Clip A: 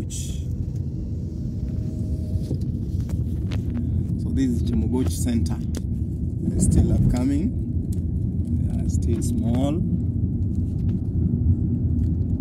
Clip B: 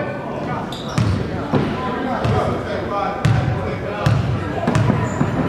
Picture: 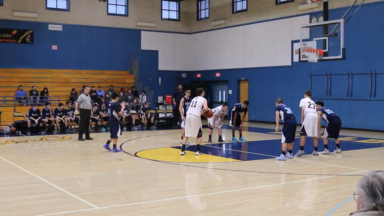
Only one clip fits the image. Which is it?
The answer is B